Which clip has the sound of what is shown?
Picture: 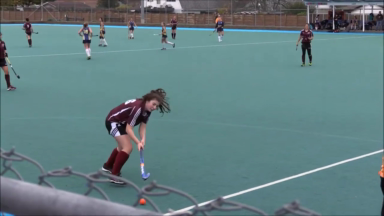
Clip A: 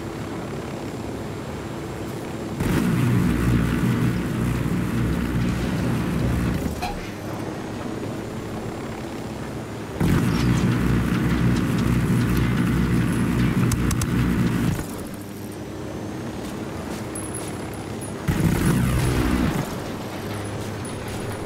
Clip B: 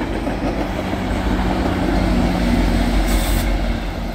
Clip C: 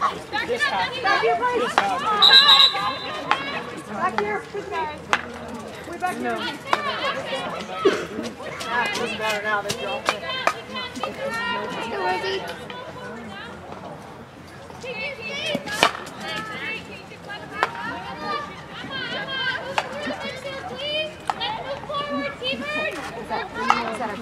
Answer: C